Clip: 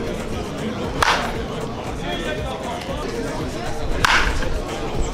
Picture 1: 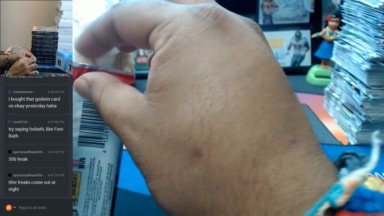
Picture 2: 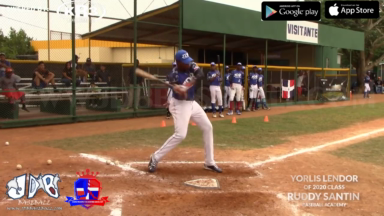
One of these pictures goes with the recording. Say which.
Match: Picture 2